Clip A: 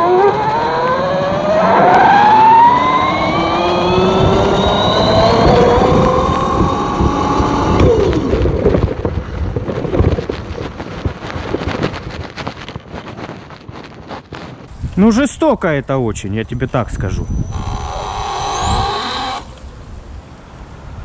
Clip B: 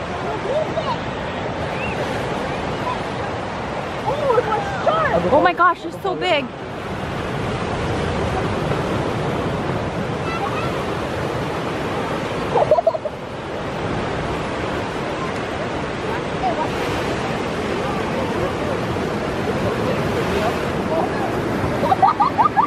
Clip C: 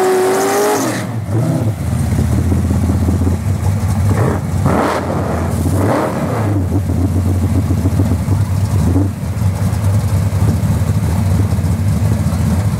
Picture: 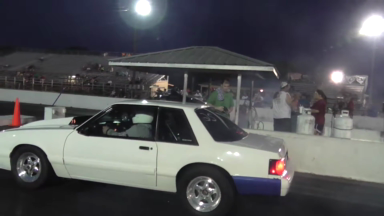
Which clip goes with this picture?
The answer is C